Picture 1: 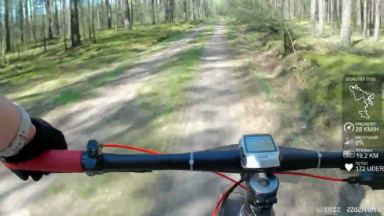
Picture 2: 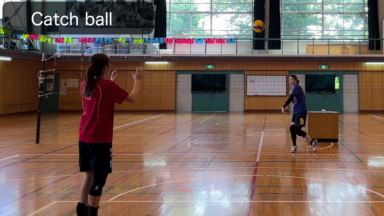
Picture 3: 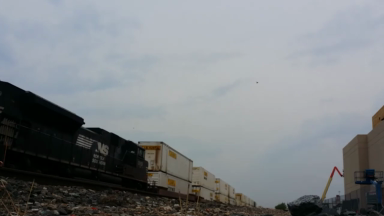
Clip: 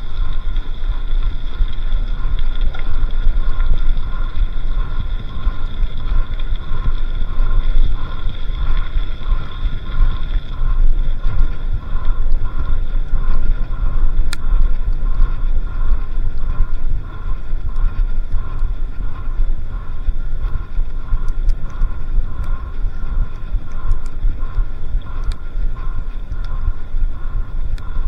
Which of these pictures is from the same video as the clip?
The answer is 1